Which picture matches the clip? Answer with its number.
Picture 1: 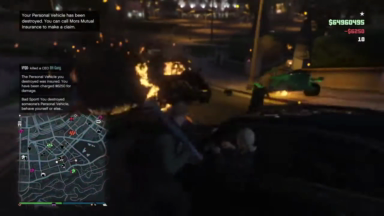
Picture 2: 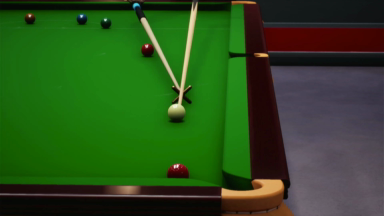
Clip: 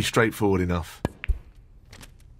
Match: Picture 2